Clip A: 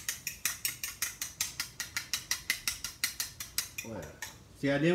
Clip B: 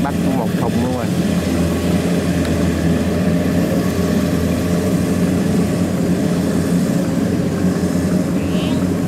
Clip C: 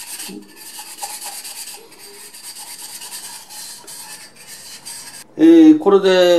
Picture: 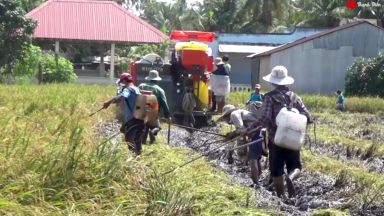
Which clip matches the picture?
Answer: B